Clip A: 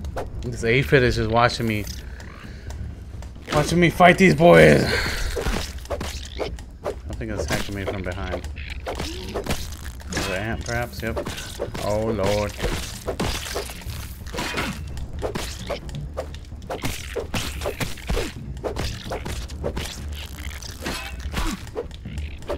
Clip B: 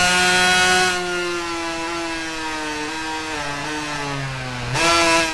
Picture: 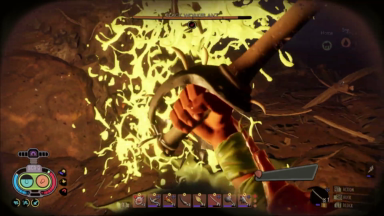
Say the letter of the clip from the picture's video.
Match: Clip A